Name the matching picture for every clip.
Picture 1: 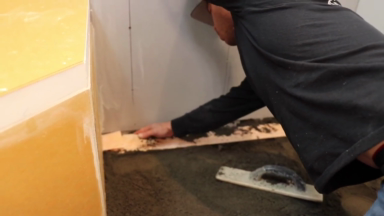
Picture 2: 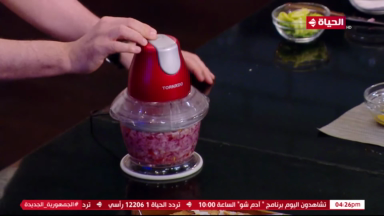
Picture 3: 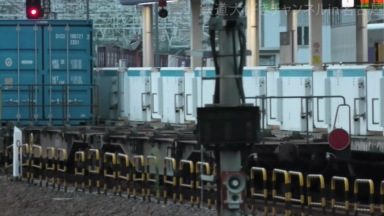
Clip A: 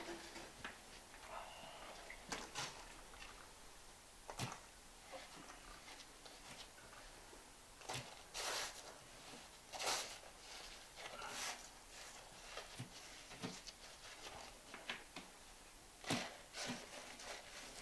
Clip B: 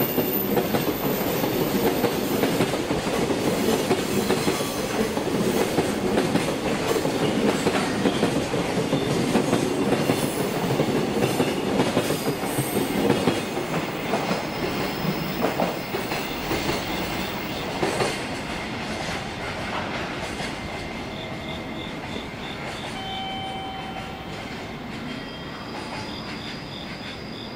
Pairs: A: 1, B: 3